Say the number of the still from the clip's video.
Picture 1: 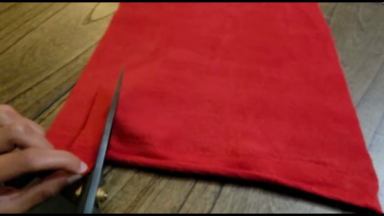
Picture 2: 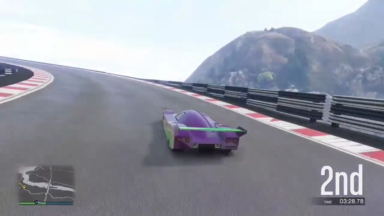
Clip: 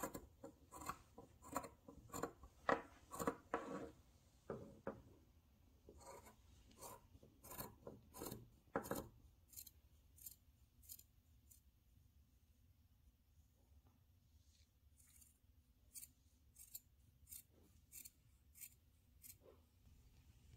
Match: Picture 1